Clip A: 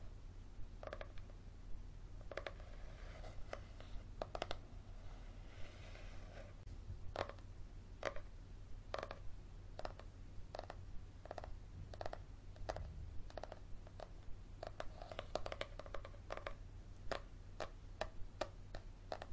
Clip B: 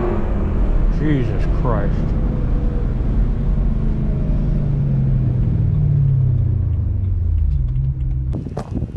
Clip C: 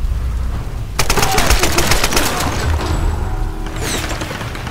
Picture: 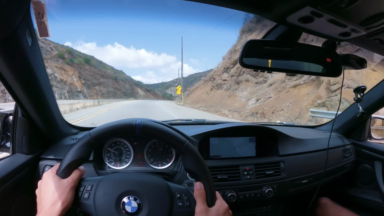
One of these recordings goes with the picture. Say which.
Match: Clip B